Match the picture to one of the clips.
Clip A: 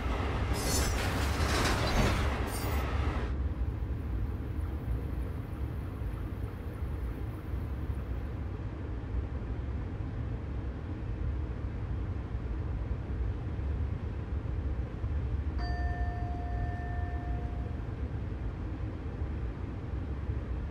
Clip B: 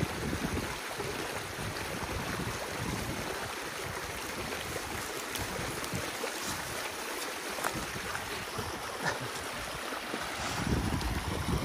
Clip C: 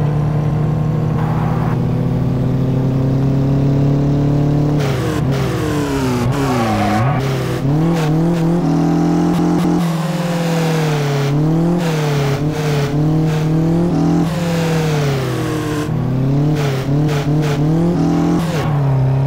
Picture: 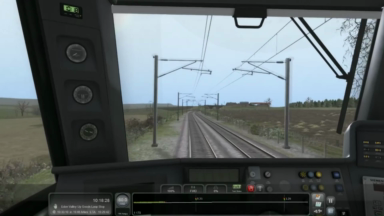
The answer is A